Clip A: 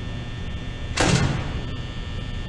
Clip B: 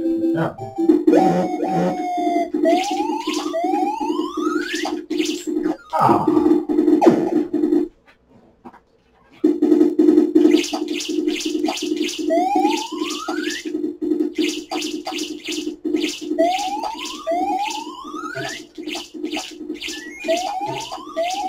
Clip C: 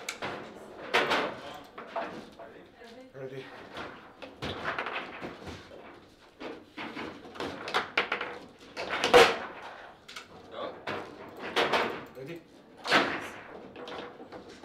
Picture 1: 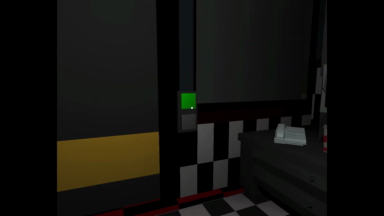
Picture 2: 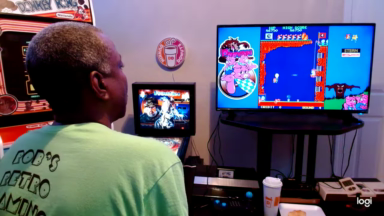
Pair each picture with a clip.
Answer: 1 A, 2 B